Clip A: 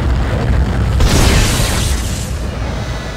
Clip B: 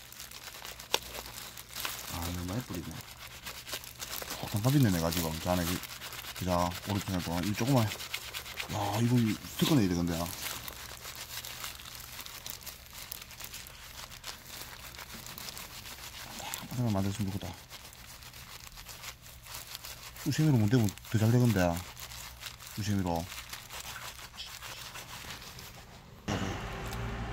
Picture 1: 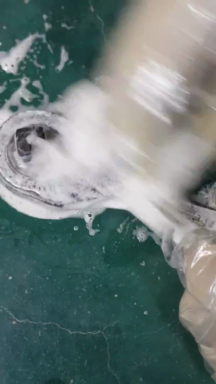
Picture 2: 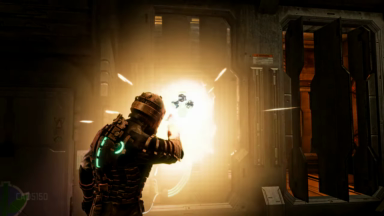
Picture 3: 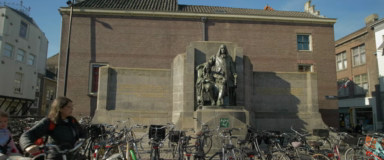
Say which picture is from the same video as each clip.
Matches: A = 2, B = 1